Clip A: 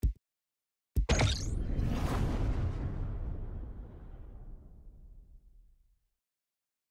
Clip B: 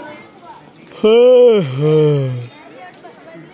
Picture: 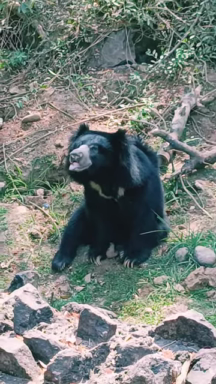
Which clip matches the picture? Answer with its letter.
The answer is B